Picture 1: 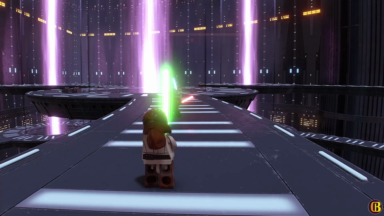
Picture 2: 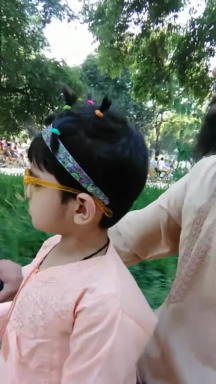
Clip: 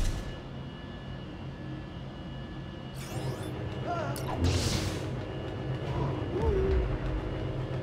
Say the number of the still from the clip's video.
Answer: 1